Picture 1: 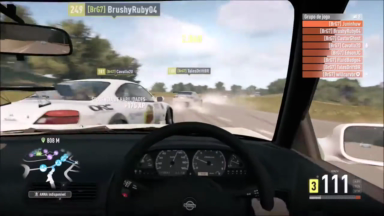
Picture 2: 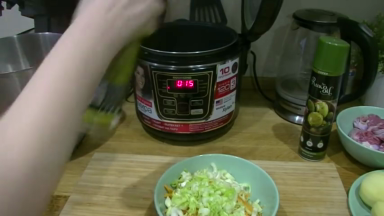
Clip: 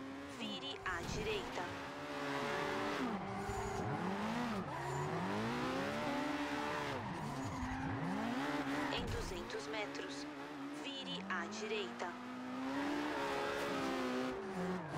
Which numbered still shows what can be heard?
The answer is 1